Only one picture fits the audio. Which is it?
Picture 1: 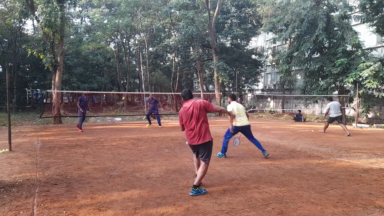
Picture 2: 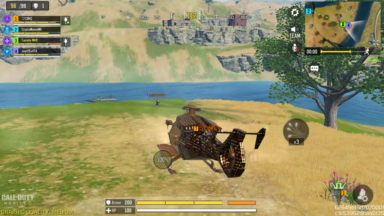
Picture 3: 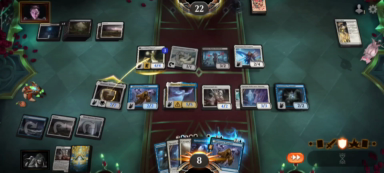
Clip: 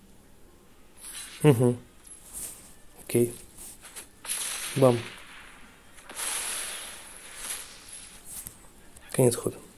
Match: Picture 3